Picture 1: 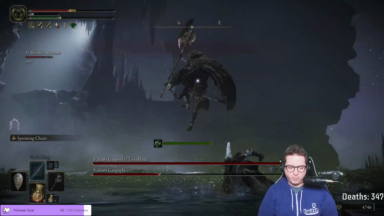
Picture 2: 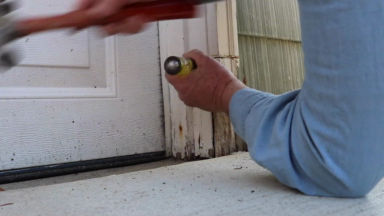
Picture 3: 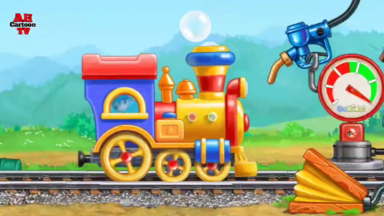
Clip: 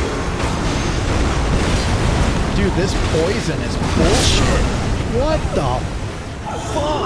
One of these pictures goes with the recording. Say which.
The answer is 1